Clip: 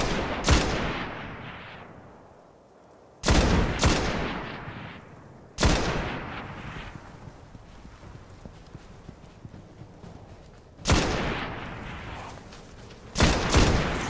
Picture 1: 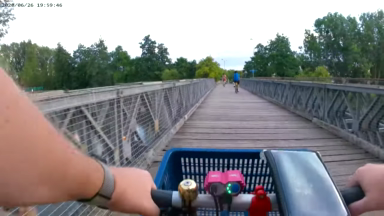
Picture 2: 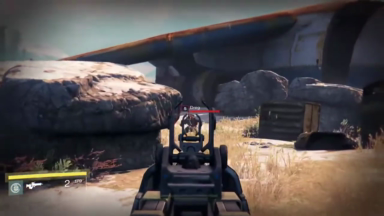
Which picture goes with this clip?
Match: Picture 2